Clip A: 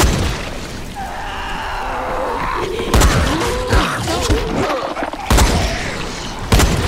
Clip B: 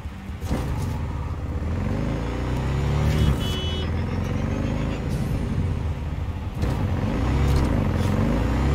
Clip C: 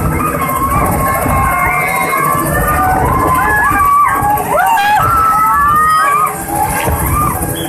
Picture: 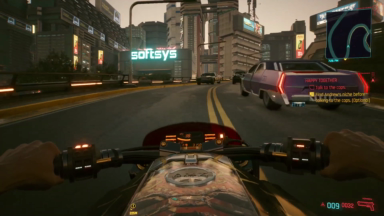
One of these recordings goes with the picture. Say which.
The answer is B